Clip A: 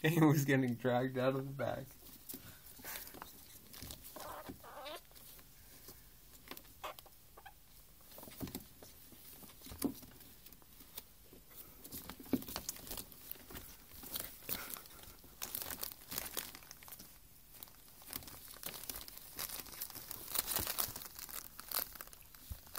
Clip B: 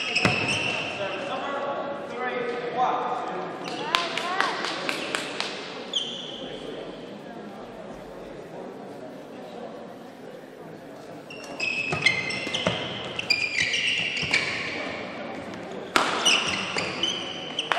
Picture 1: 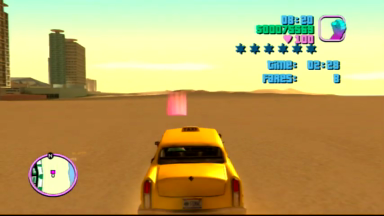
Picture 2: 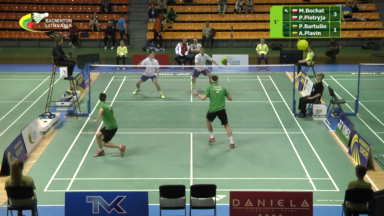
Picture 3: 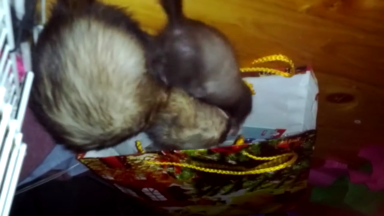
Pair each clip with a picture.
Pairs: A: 3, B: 2